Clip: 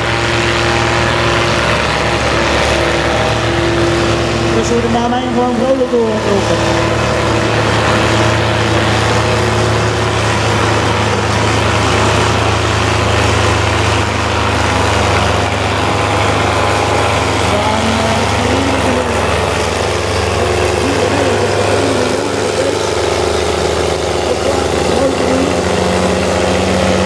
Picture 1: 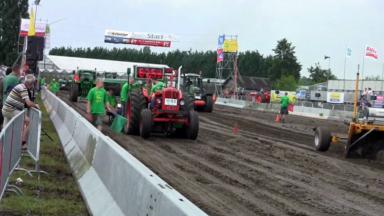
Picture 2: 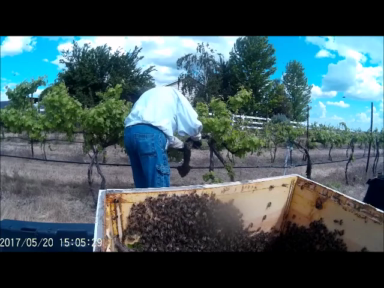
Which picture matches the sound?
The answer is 1